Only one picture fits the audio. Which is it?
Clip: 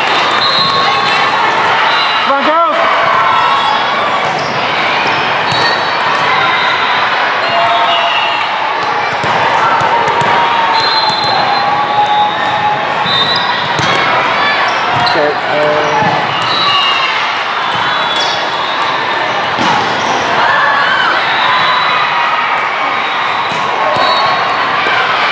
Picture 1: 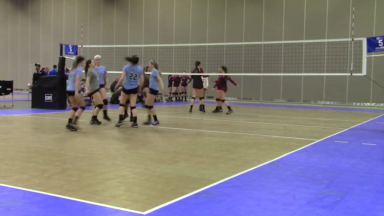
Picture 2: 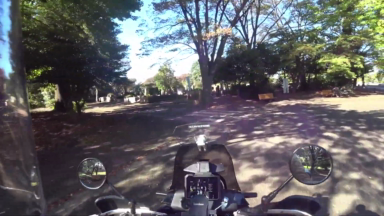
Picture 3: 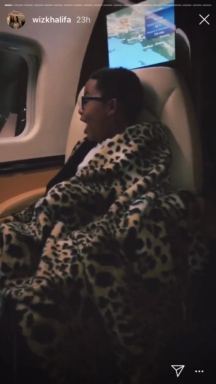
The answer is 1